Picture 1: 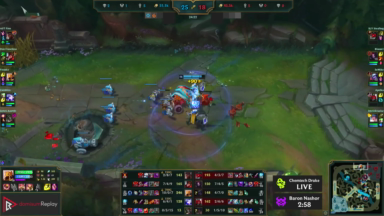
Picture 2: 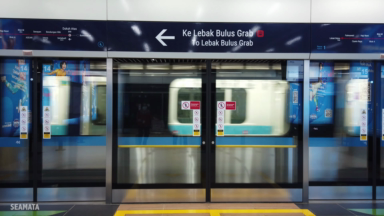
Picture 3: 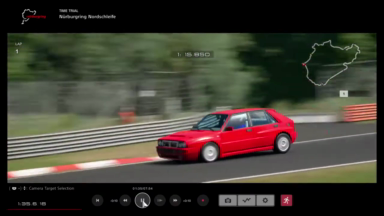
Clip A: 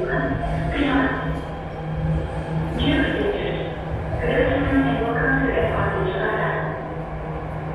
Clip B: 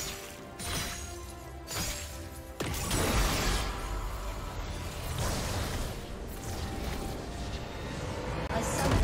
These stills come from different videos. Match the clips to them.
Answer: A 2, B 1